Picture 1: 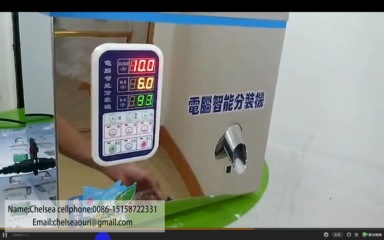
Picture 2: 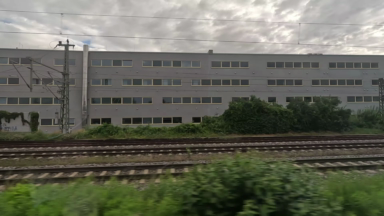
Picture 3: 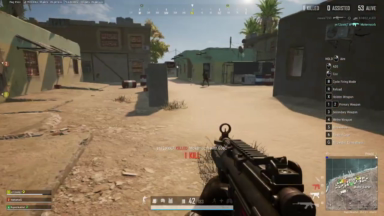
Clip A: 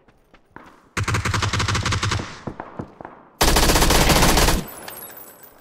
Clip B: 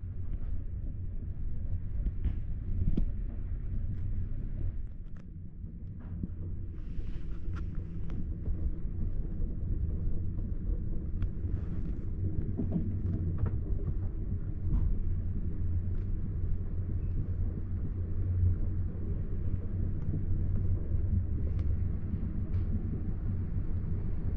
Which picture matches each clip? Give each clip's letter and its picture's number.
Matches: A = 3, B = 2